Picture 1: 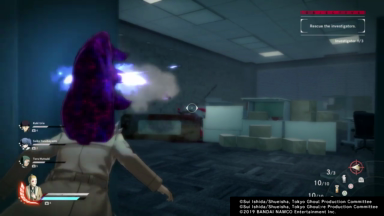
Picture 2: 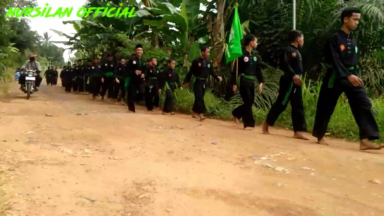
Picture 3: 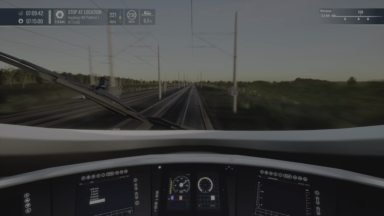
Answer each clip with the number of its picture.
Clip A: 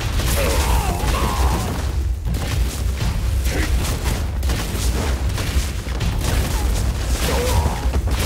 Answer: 1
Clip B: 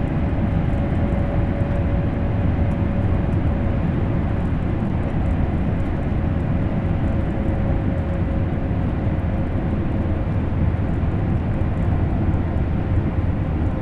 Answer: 3